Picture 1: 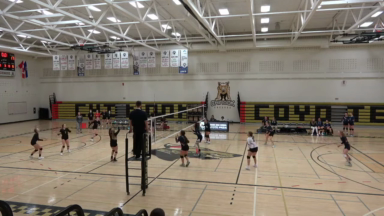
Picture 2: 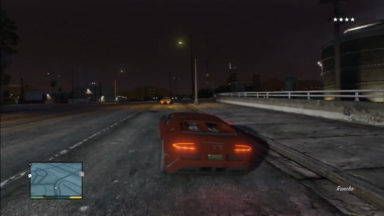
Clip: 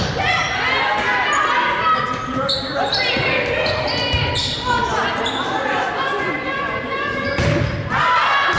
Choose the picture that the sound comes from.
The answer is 1